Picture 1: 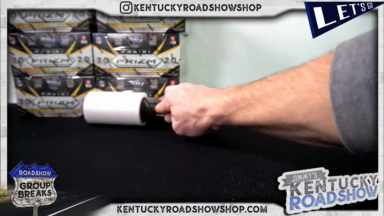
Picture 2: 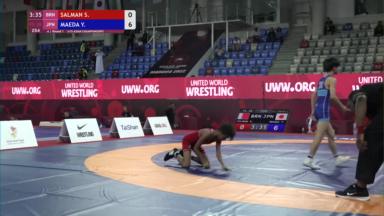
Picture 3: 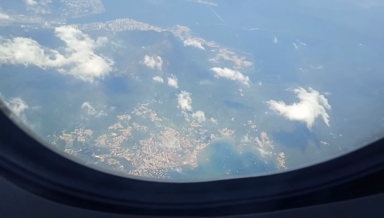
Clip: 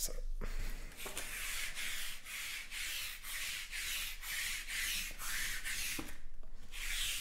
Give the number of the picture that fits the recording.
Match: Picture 1